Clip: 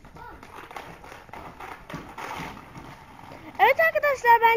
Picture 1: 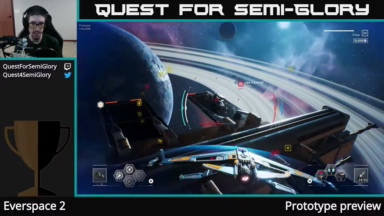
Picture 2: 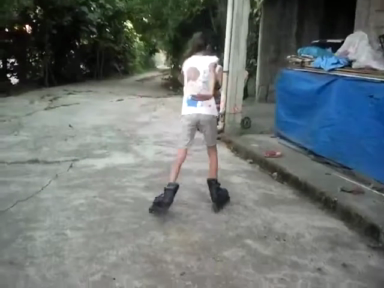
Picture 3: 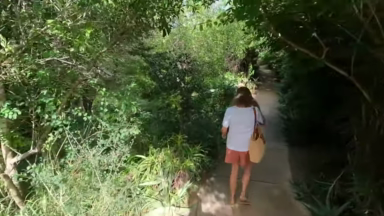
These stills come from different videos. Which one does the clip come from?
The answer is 2